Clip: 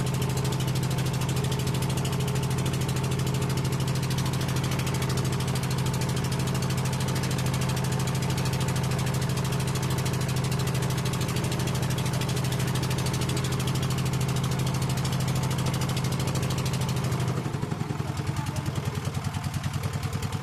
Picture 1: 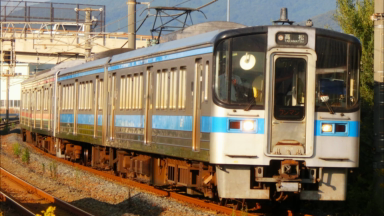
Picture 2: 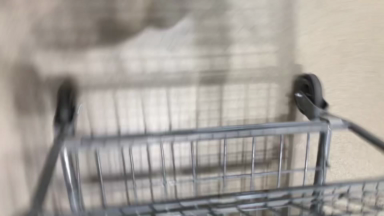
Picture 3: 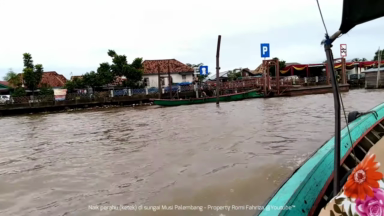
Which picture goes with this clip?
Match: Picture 3